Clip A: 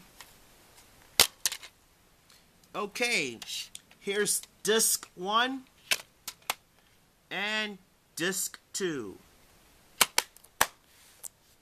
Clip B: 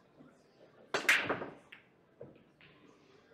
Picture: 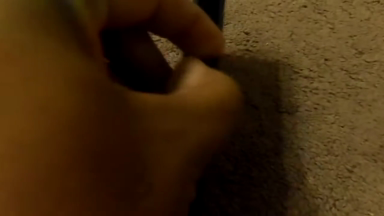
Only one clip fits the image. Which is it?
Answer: A